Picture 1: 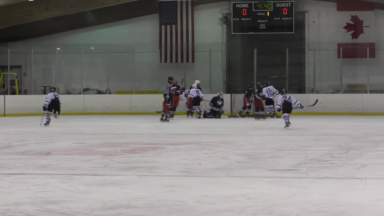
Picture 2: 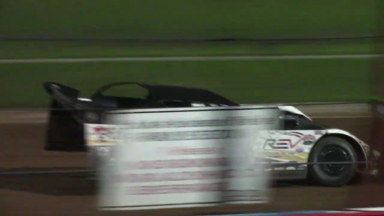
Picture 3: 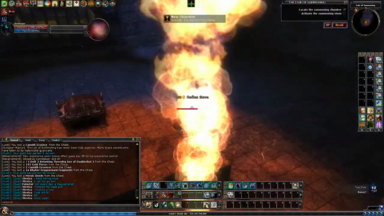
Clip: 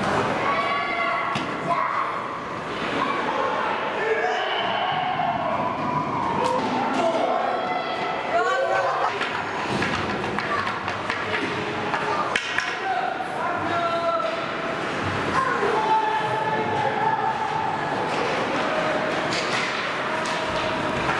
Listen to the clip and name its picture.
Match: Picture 1